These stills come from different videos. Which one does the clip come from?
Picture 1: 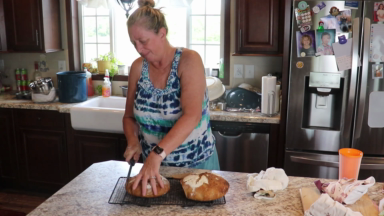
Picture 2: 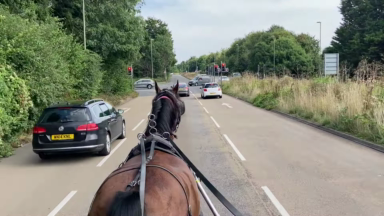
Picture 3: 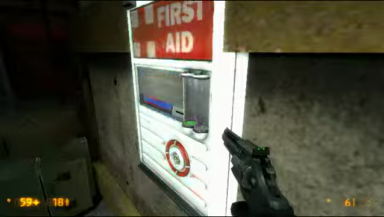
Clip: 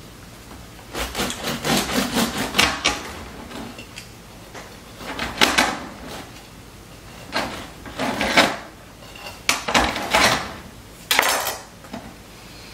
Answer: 1